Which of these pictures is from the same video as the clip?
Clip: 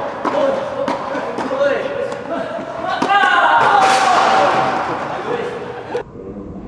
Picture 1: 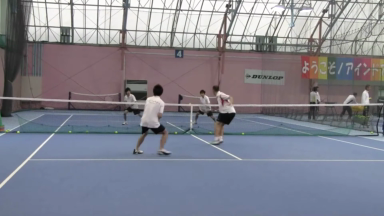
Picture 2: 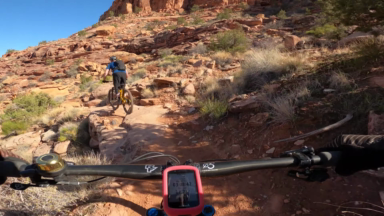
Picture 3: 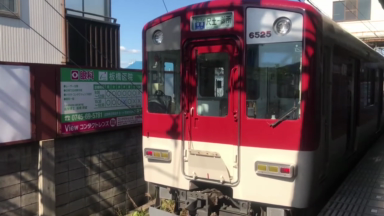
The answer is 1